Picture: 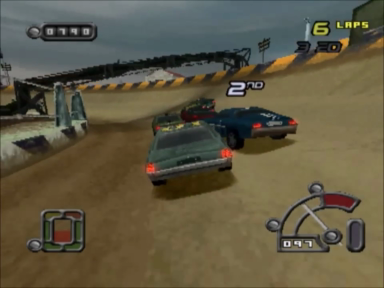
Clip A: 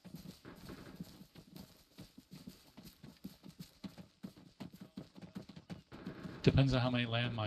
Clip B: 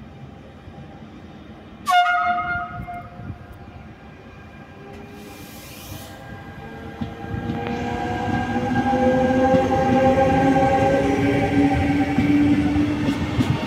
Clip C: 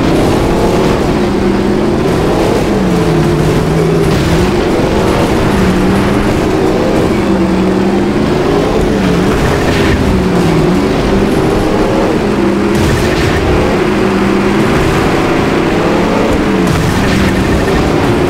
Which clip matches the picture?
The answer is C